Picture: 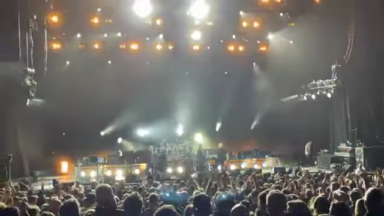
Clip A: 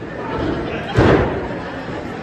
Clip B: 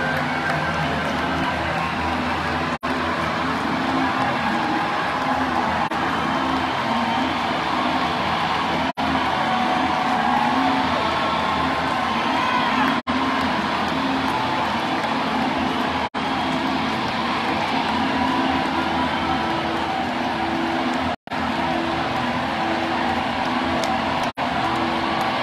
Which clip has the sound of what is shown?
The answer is B